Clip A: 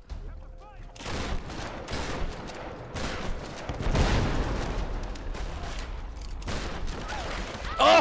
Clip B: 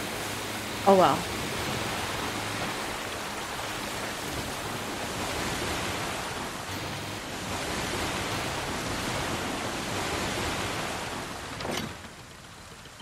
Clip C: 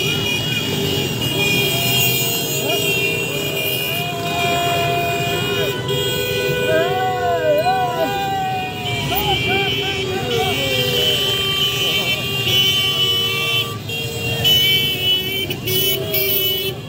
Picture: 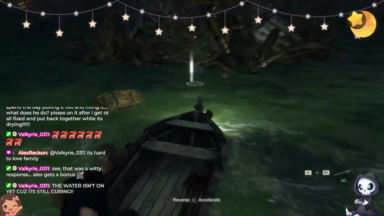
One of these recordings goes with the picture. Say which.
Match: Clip B